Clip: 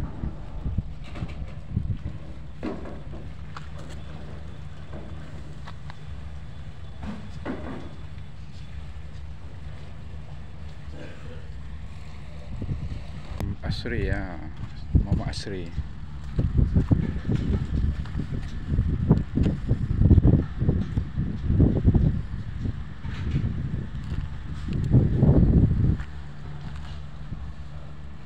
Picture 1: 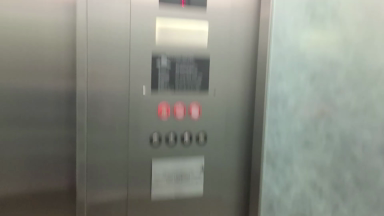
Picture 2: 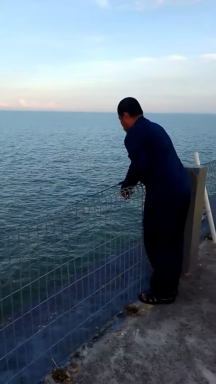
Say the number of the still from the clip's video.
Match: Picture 2